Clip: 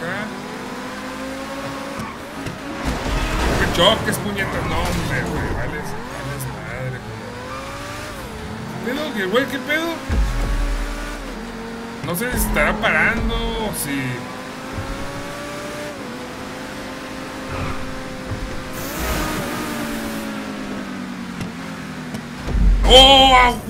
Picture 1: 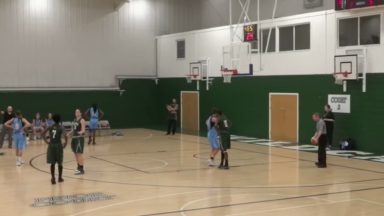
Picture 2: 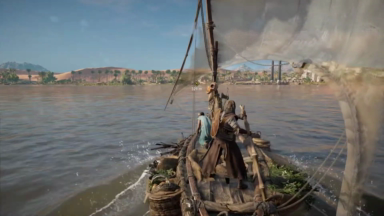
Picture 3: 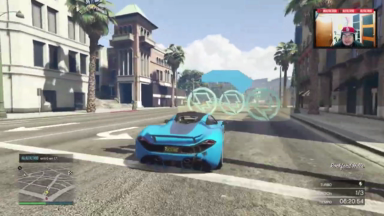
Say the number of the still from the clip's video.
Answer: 3